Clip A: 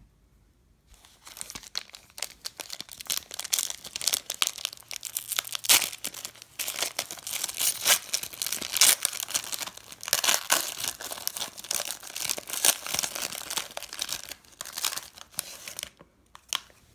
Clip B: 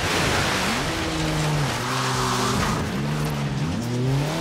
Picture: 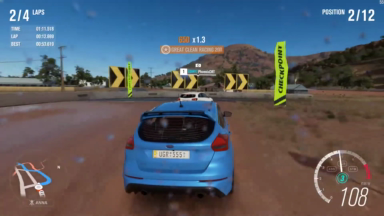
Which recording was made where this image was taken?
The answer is B